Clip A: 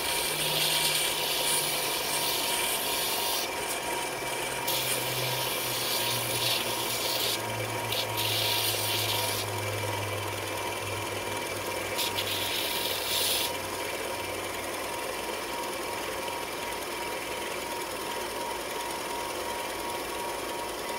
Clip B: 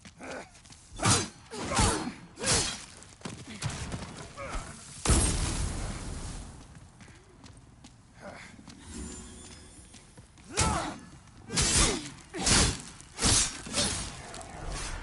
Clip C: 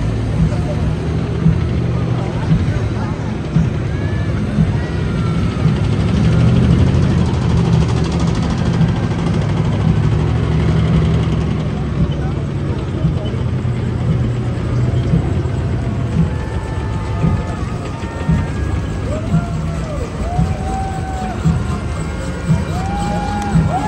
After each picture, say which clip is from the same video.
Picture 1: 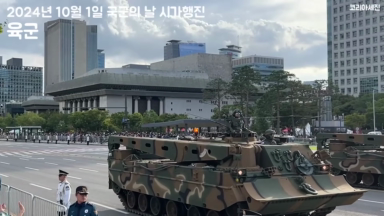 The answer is C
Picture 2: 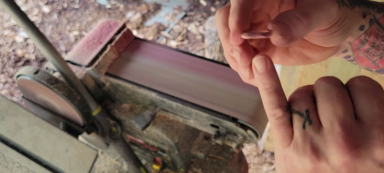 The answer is A